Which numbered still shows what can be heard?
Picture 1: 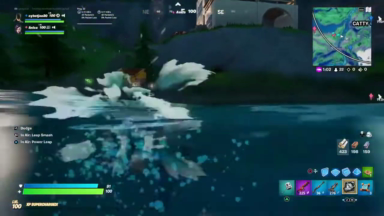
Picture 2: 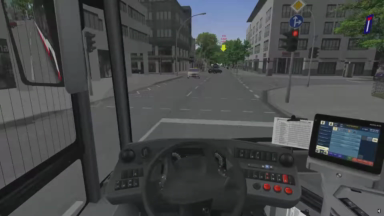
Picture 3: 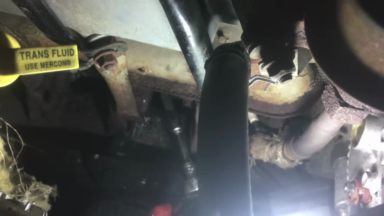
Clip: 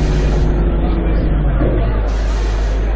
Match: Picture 2